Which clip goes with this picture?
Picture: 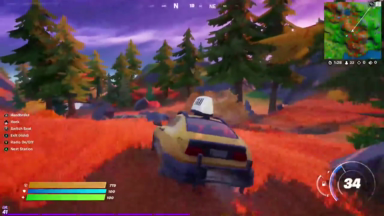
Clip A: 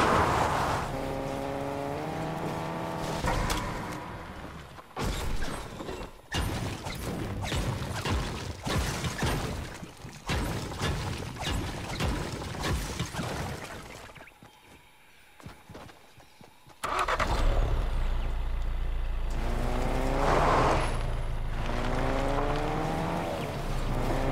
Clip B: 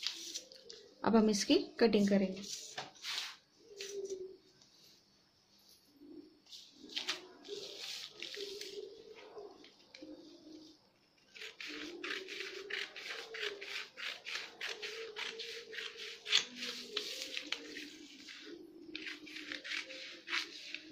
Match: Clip A